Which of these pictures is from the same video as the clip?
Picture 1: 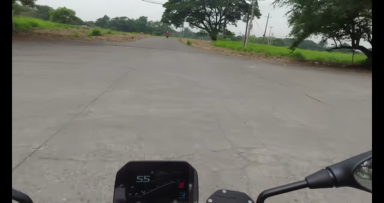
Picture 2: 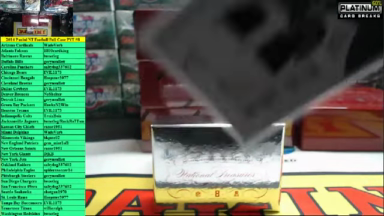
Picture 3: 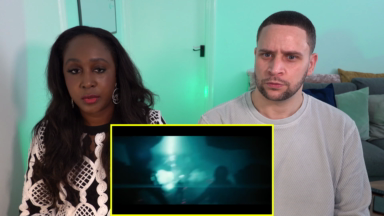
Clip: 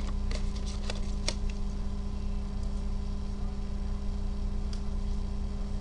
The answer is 2